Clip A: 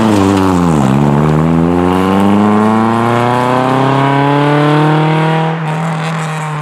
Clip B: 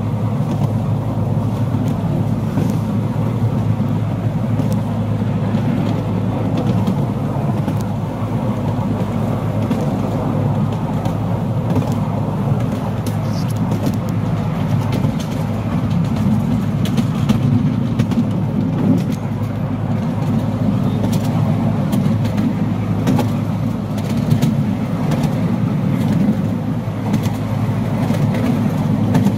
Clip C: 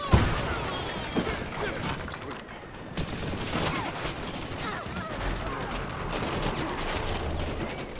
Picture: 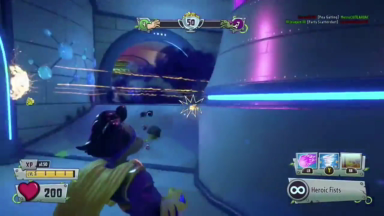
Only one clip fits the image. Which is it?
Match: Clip C